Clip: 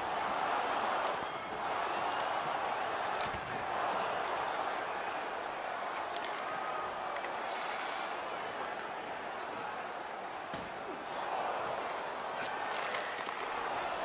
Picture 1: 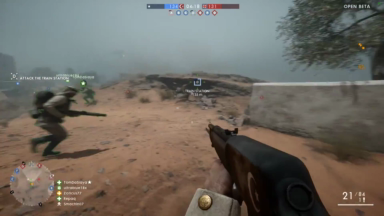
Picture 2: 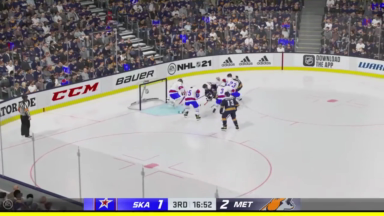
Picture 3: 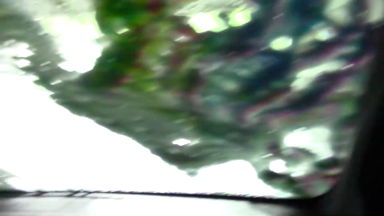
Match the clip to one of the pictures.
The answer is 2